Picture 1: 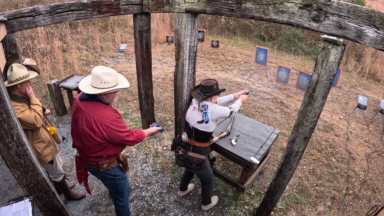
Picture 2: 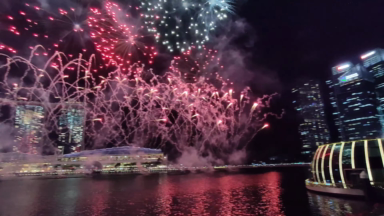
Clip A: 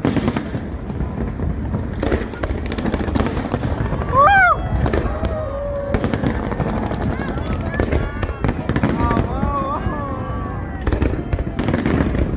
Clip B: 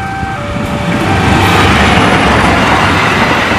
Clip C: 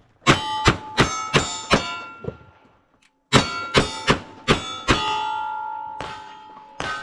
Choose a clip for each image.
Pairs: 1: C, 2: A